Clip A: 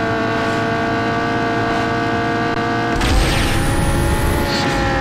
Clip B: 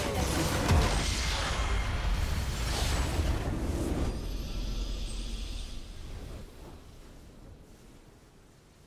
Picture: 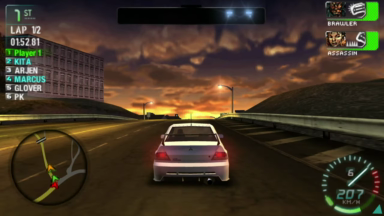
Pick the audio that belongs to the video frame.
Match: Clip A